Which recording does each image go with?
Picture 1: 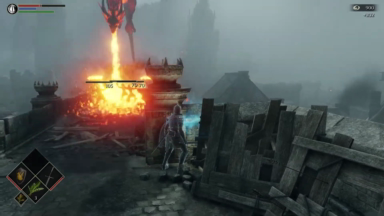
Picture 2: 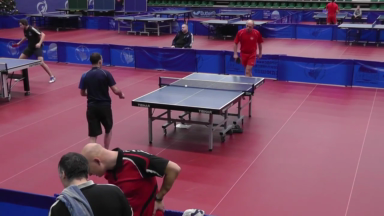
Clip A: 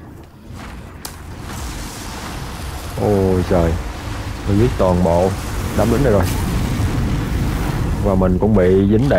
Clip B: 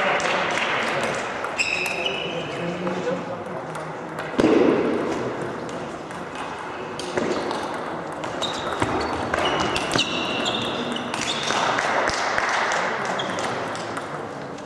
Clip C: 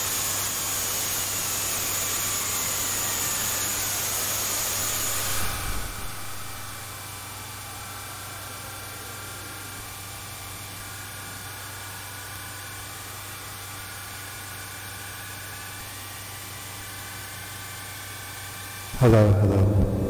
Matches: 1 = A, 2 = B